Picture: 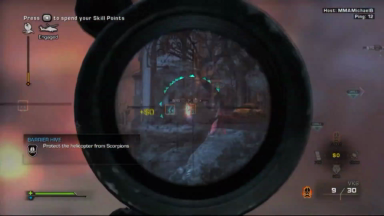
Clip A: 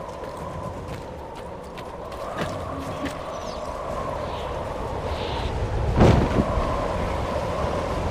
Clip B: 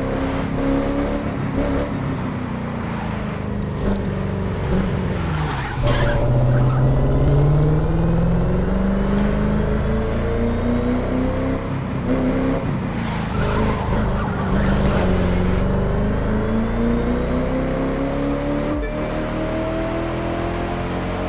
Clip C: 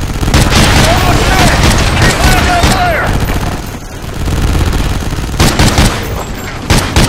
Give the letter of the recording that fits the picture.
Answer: C